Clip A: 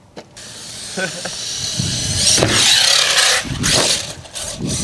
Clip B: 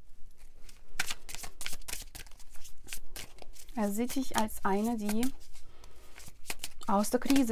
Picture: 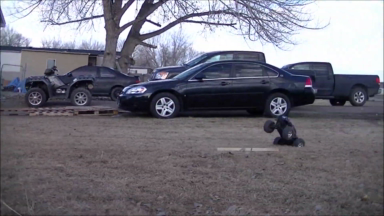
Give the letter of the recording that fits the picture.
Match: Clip A